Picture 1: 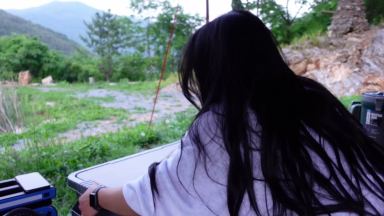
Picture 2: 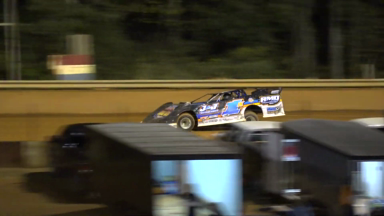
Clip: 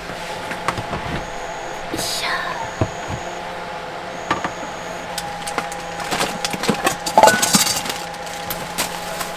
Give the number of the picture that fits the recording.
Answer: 1